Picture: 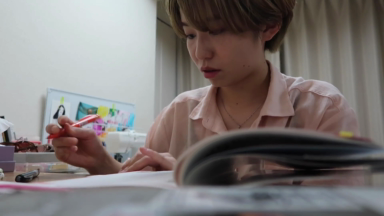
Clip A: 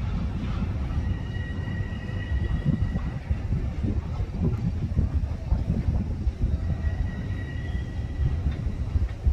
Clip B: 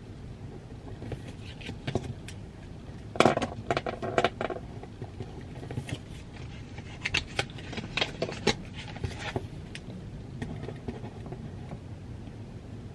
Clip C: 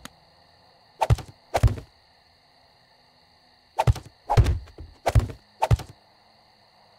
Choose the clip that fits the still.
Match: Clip B